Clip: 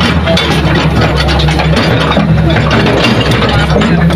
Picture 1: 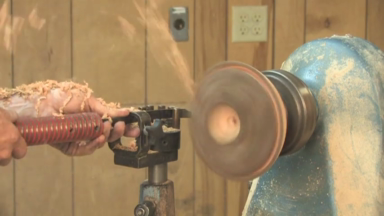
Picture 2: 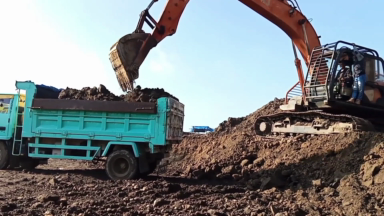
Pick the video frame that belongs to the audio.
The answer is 2